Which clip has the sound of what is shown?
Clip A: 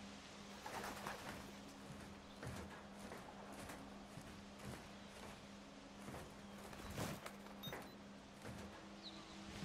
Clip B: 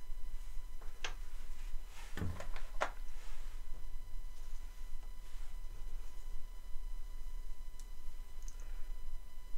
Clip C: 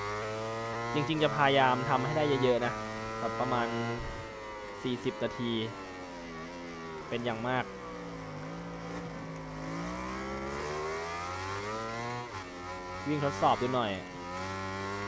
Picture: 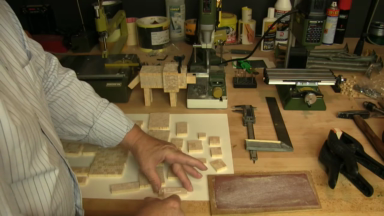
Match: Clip B